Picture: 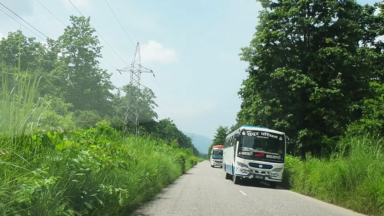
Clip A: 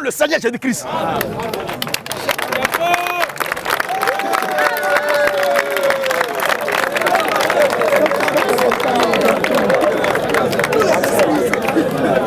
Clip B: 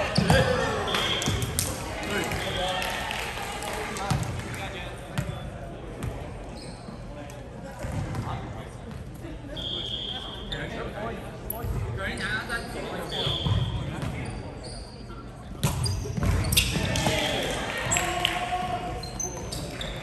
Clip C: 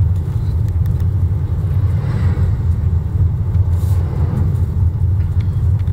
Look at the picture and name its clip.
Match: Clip C